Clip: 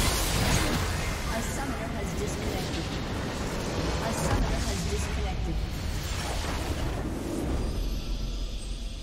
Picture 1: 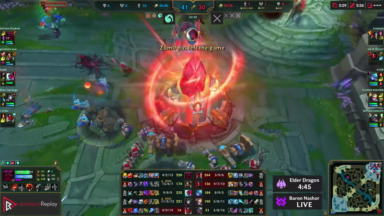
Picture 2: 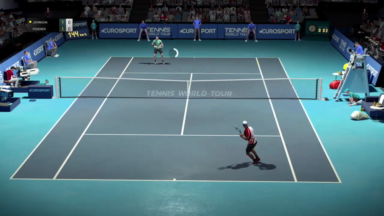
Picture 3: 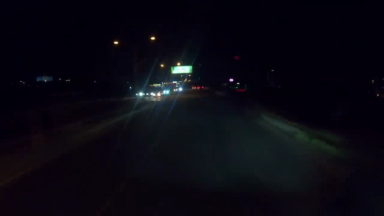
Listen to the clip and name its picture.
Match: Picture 1